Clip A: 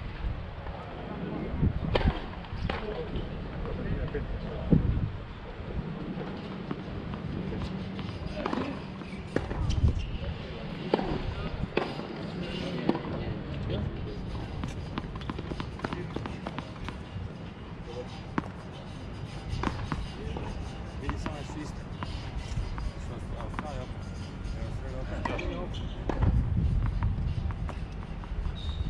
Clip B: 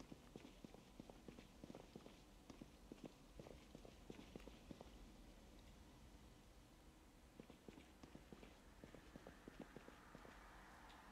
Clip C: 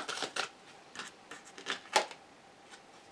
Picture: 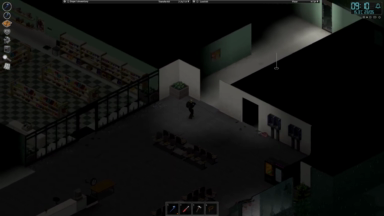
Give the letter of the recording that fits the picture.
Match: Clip B